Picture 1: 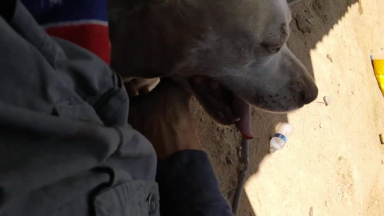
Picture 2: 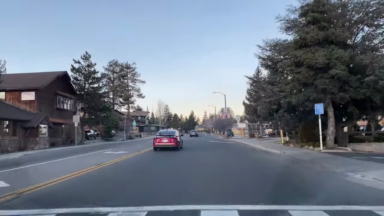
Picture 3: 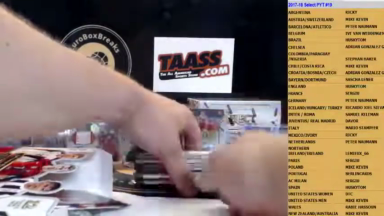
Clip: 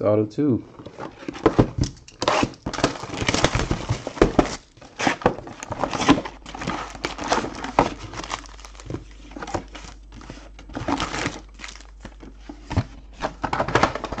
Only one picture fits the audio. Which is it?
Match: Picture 3